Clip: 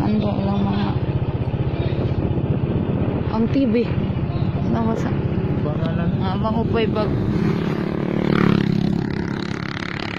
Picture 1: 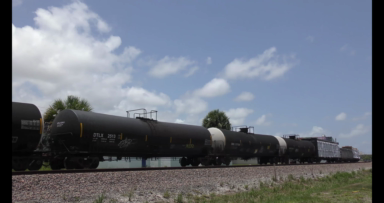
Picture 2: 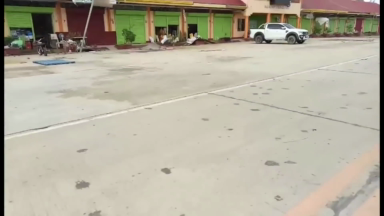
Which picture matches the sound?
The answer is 2